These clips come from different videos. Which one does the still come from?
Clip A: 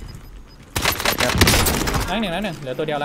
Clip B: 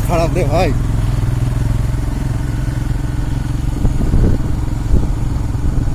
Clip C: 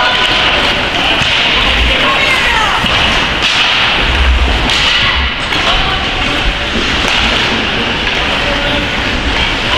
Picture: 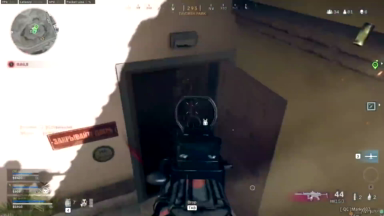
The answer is A